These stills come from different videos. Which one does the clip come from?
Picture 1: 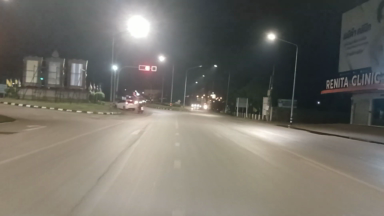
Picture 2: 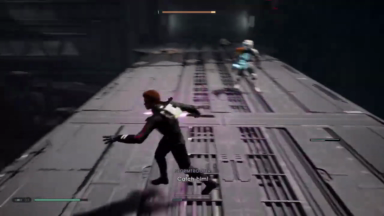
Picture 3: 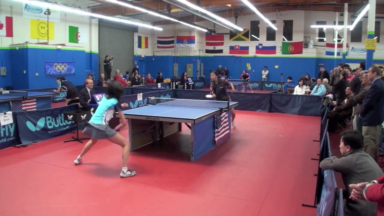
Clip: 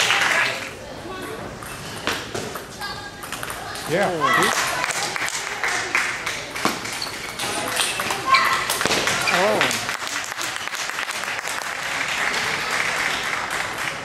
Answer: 3